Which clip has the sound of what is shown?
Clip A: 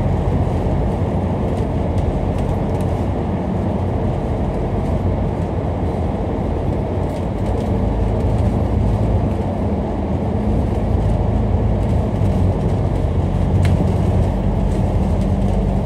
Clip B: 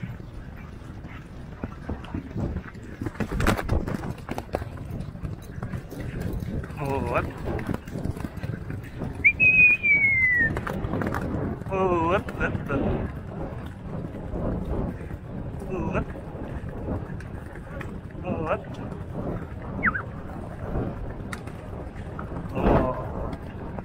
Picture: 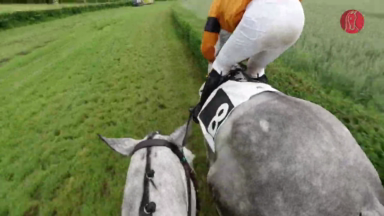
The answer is B